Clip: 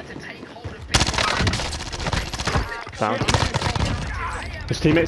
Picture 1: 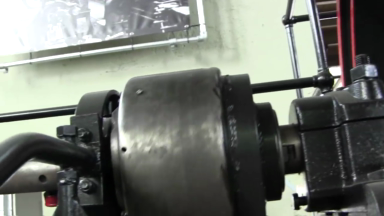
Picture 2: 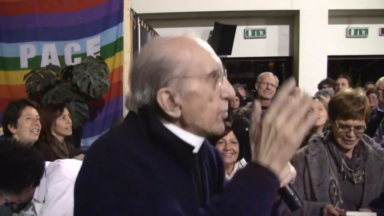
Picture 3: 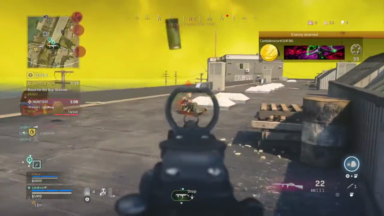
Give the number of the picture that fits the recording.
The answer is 3